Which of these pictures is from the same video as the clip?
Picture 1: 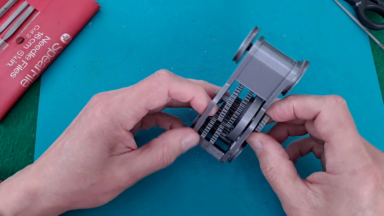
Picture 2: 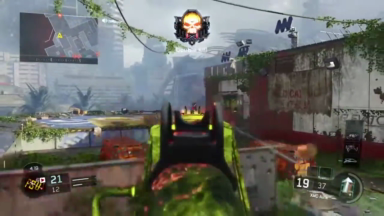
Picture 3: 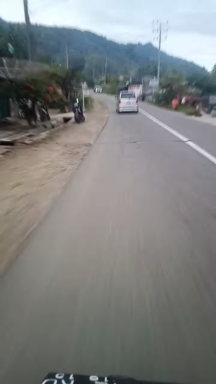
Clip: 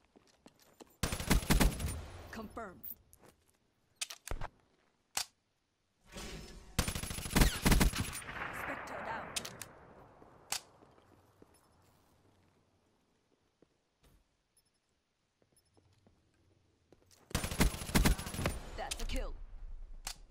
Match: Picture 2